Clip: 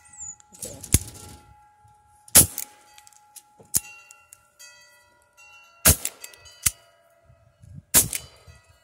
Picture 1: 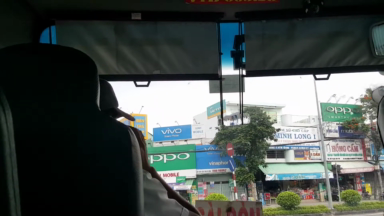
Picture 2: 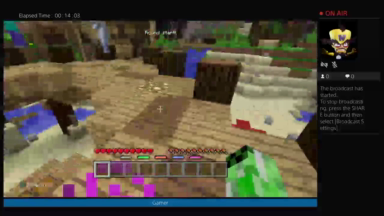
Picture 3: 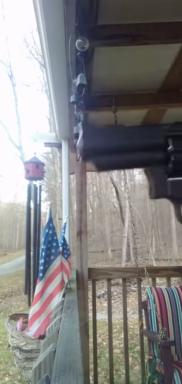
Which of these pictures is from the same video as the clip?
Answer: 3